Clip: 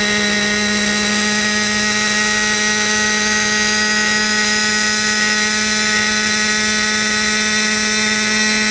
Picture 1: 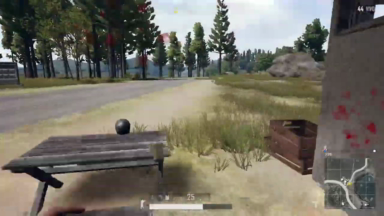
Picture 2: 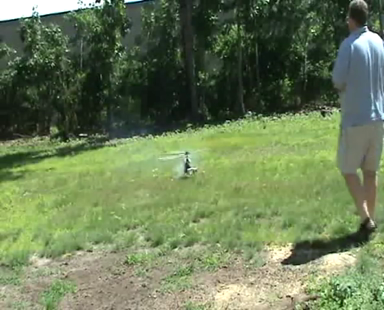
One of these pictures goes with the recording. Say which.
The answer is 2